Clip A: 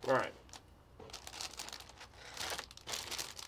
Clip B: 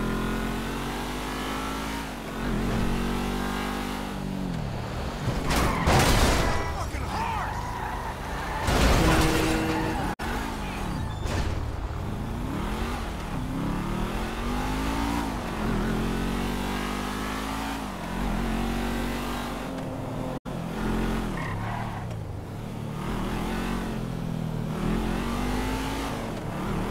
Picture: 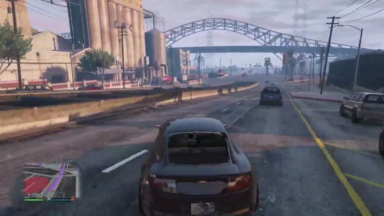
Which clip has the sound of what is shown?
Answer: B